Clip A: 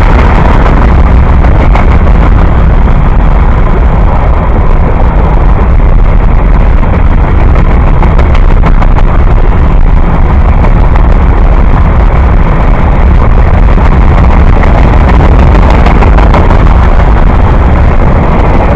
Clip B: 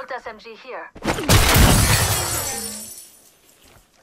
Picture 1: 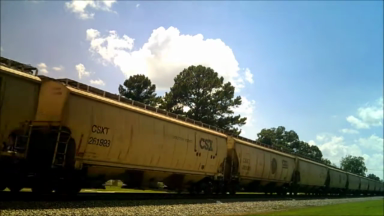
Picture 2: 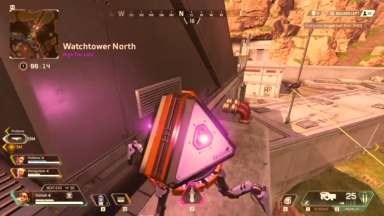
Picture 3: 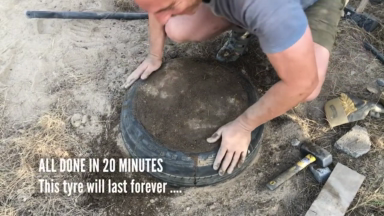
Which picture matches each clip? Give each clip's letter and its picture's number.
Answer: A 1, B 2